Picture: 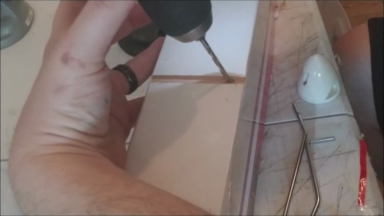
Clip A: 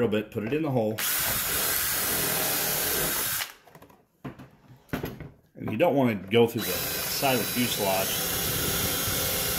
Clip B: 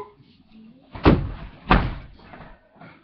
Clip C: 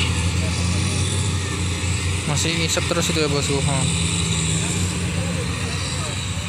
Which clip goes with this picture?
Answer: A